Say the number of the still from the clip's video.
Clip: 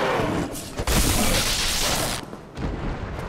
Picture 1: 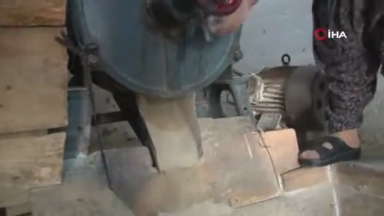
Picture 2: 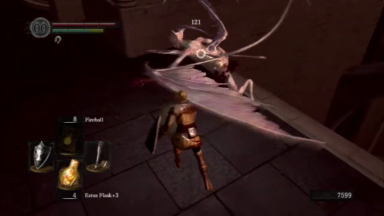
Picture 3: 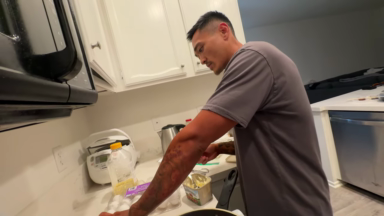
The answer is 2